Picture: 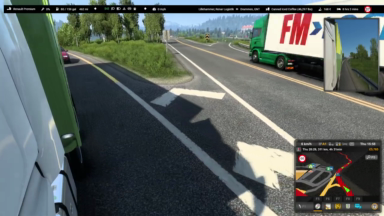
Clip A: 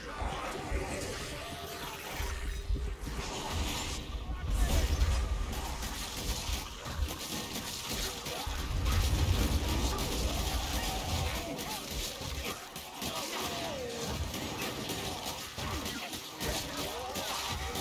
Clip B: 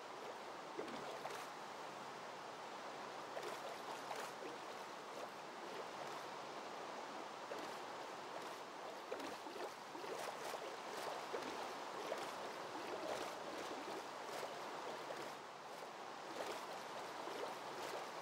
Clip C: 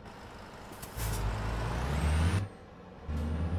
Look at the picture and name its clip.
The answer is C